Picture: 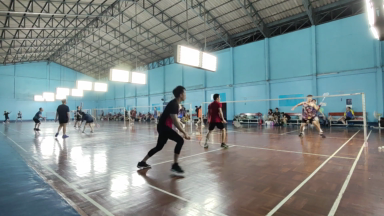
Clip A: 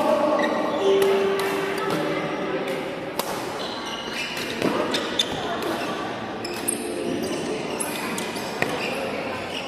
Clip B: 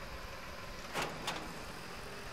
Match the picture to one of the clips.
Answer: A